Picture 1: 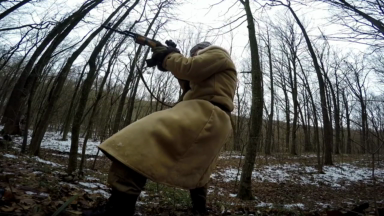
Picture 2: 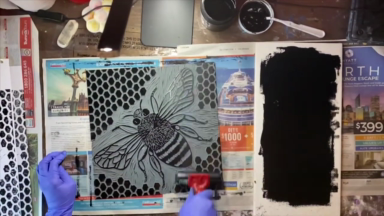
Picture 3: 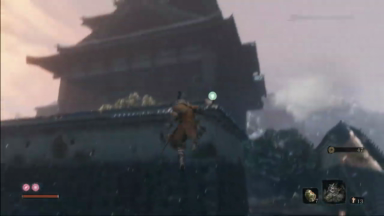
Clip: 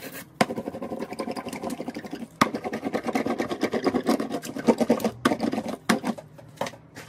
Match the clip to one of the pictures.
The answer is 2